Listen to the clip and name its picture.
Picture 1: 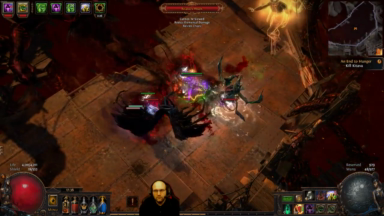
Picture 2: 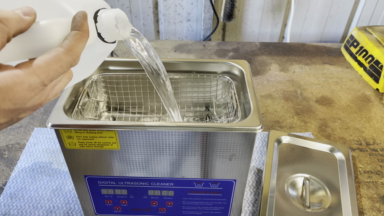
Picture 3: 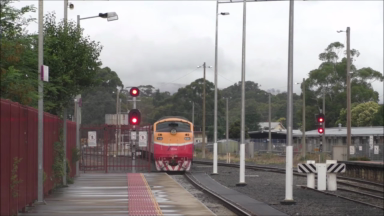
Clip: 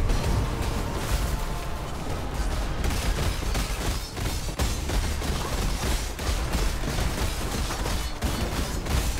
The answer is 1